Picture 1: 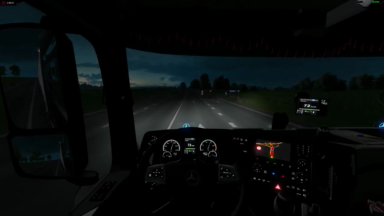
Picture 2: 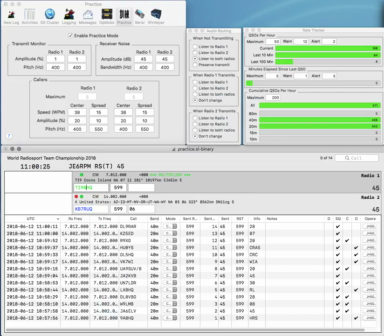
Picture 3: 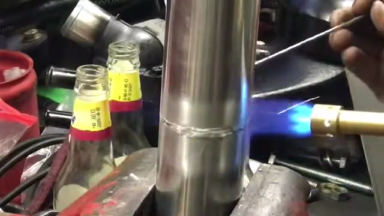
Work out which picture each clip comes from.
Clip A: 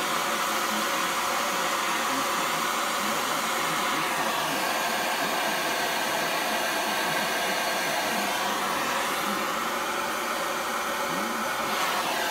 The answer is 3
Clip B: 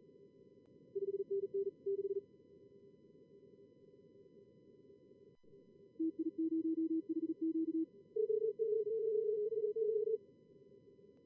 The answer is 2